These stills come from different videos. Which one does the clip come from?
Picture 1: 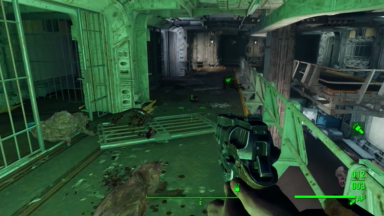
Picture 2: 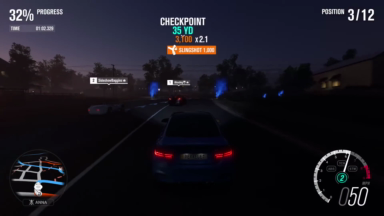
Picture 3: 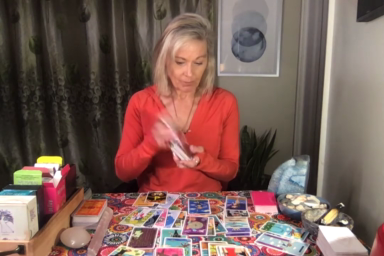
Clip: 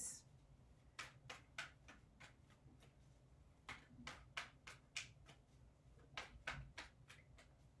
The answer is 3